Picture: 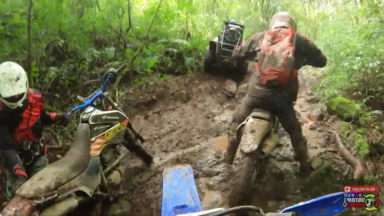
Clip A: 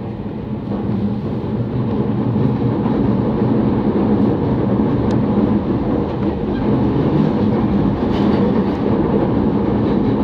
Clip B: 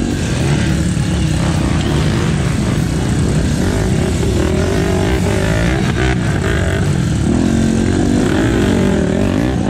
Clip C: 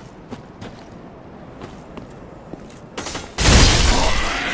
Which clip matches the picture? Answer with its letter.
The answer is B